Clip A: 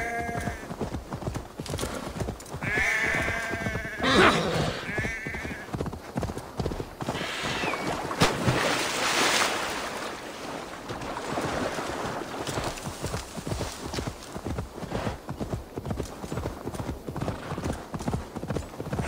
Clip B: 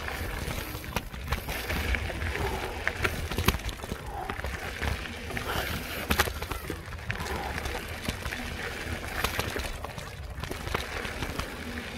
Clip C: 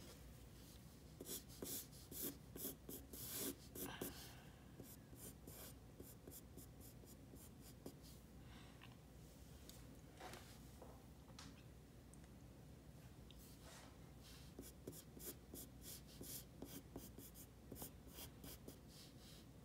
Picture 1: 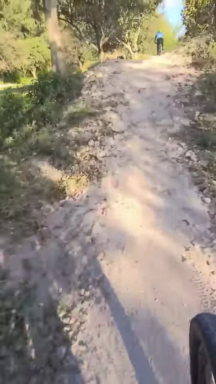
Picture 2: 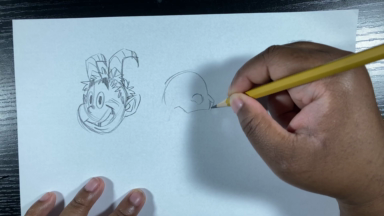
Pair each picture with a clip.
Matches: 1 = B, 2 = C